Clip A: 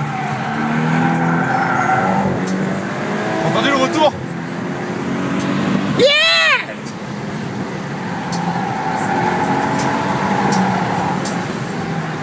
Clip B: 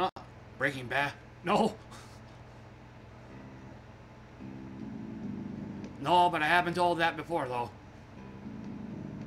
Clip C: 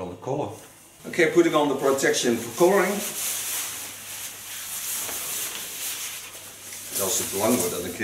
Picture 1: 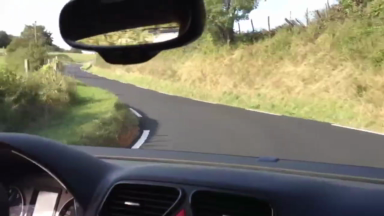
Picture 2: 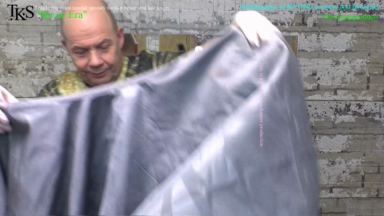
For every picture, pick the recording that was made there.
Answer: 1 A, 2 C